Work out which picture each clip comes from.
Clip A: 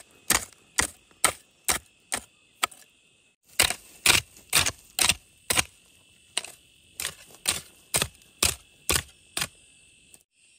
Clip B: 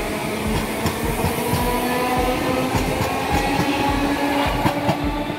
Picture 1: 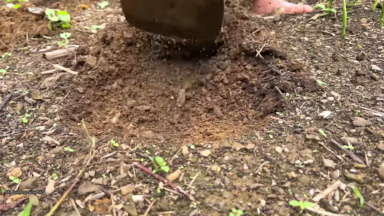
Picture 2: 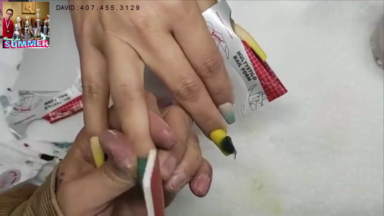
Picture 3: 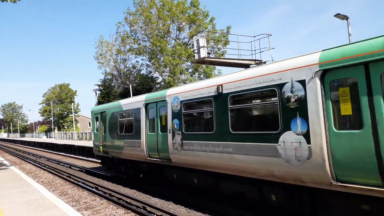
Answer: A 1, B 3